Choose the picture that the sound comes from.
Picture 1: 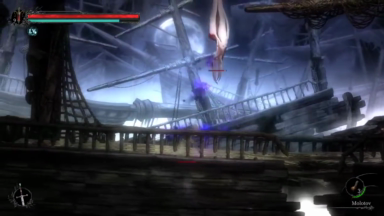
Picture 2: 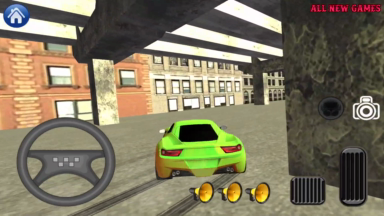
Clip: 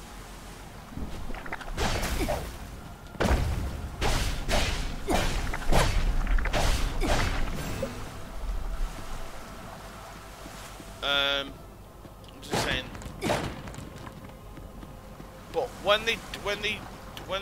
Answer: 1